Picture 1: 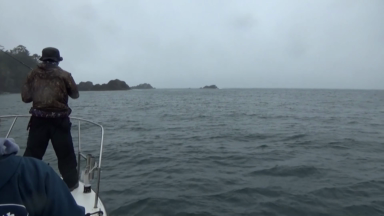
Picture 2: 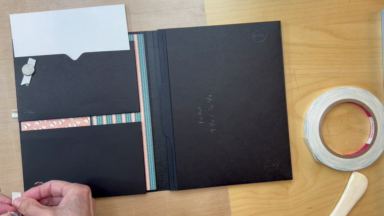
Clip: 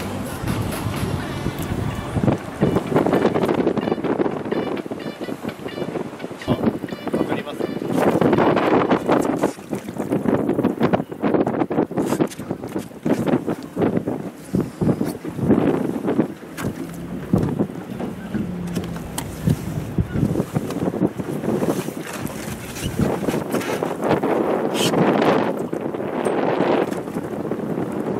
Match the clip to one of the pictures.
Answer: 1